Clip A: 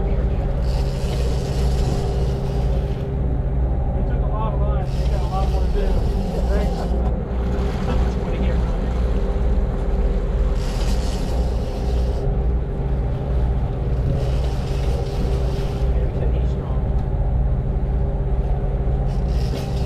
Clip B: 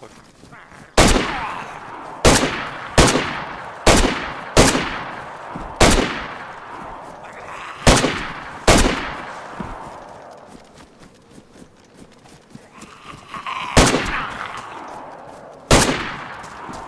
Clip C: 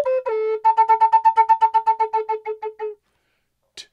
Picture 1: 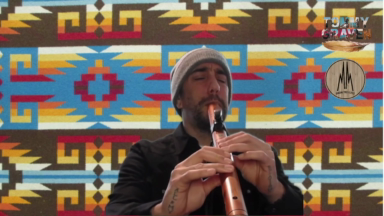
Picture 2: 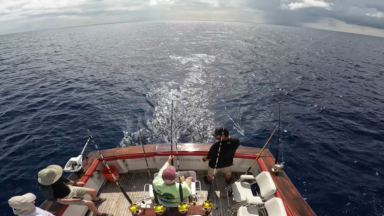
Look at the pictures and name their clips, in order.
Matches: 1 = C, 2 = A